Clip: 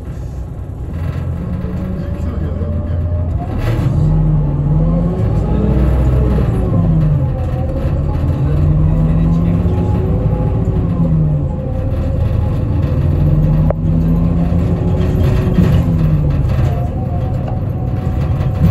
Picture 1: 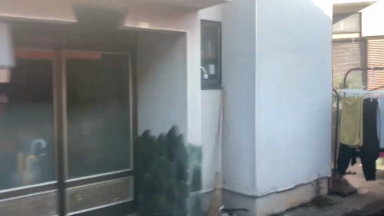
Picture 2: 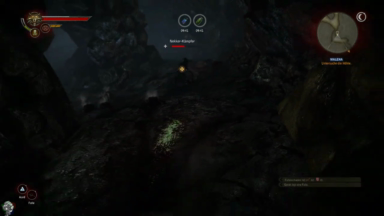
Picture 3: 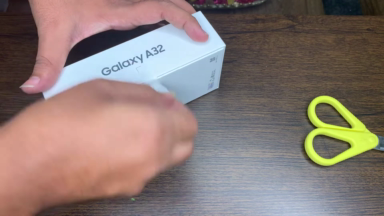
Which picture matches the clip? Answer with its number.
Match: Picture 1